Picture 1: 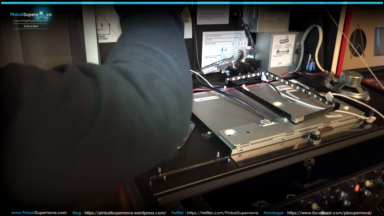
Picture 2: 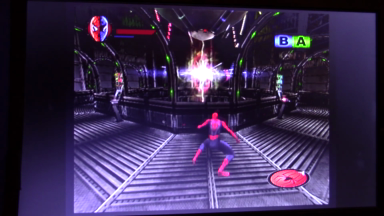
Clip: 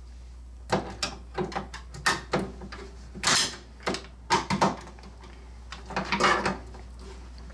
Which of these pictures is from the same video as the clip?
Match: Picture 1